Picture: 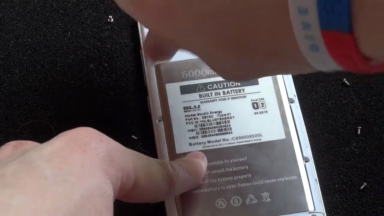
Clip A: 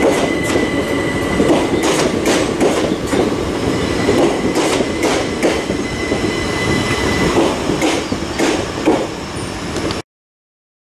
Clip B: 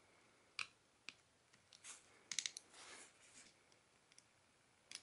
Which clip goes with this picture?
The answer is B